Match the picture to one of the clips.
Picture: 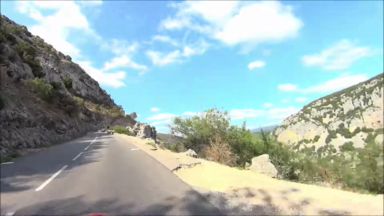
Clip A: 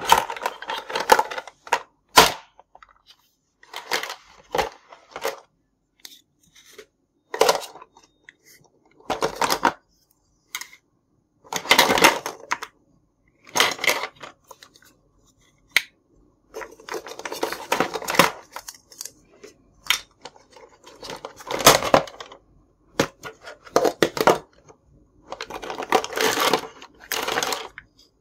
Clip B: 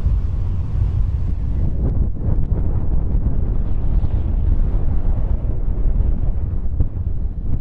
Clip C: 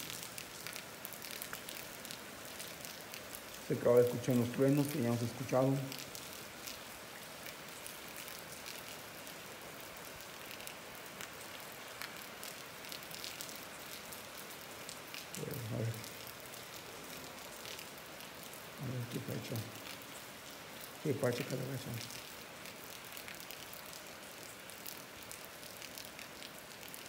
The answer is B